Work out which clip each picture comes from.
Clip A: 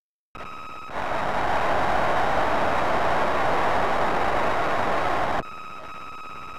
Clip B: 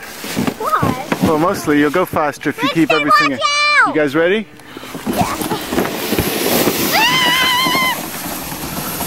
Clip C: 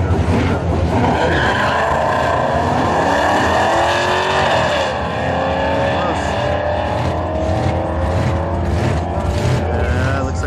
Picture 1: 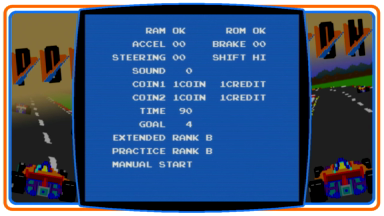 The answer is A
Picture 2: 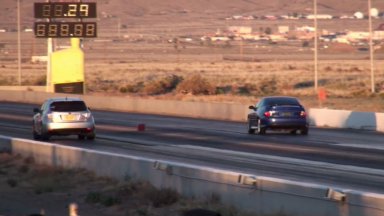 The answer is C